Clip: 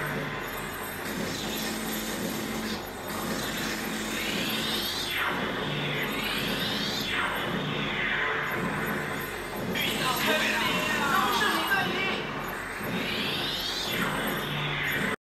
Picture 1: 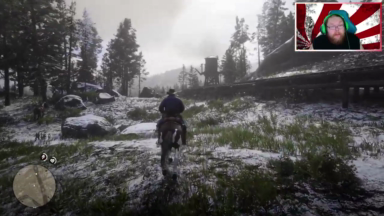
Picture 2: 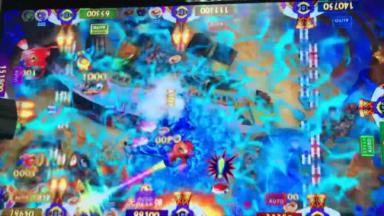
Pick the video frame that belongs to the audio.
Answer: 2